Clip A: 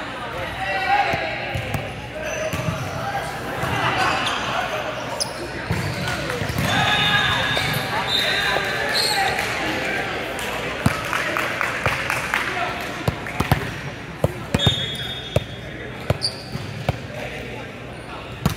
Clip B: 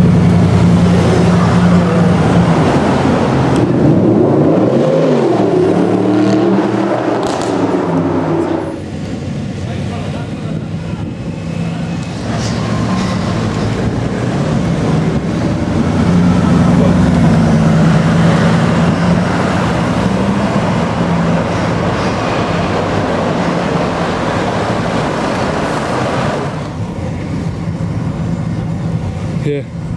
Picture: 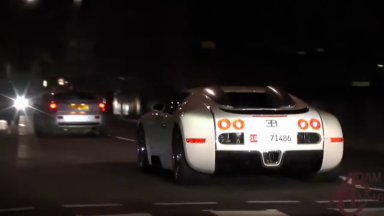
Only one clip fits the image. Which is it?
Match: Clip B